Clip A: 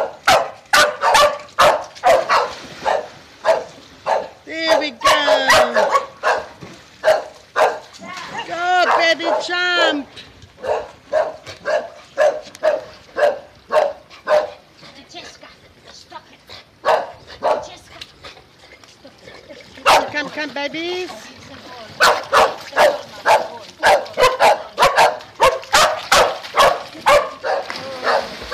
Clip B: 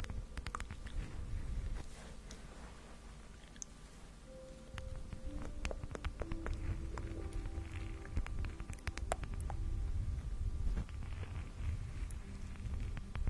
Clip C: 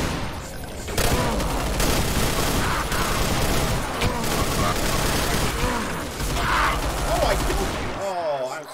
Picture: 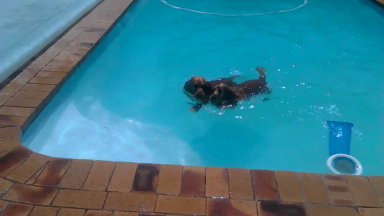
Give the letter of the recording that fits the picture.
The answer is A